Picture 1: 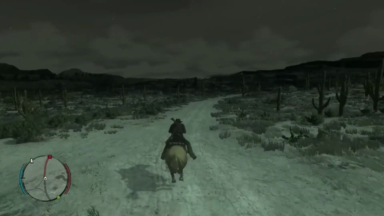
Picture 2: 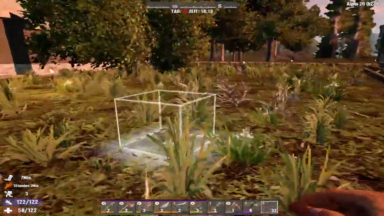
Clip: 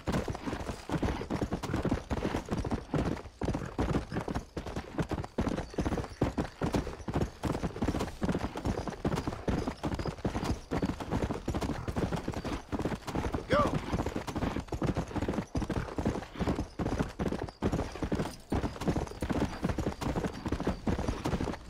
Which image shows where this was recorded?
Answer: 1